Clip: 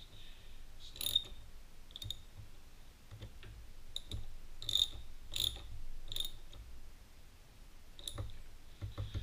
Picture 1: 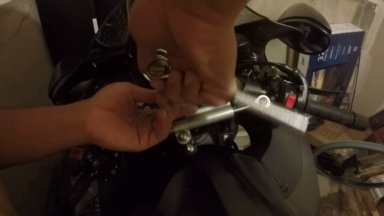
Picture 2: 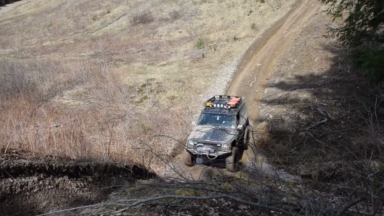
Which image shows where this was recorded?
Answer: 1